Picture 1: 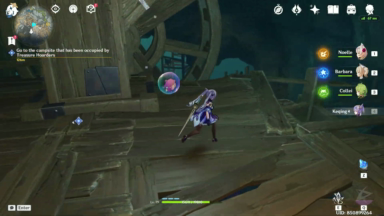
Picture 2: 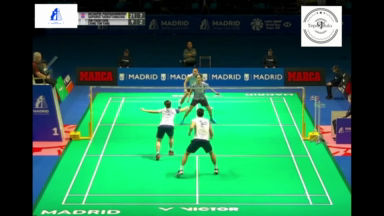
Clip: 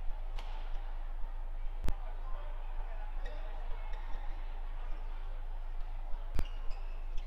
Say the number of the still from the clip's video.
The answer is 2